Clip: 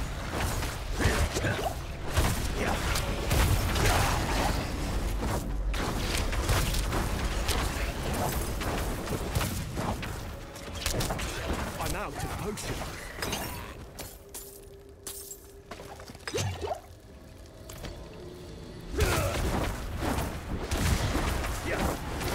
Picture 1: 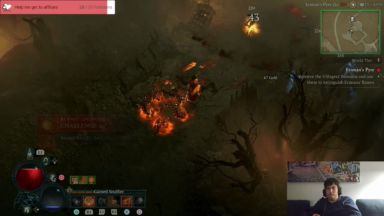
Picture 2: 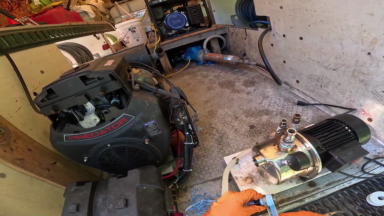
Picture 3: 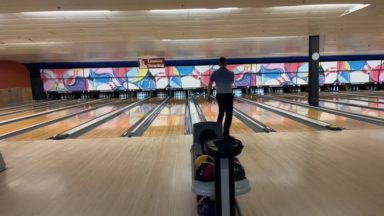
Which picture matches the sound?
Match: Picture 1